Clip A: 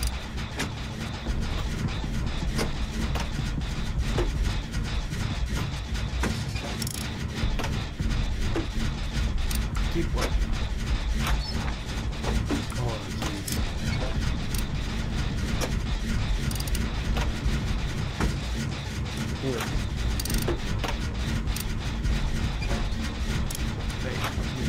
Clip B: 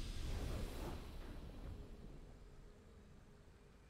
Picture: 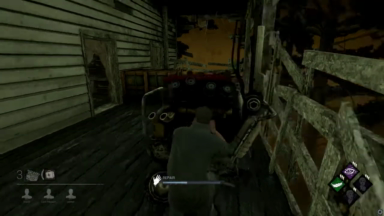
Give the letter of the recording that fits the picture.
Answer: A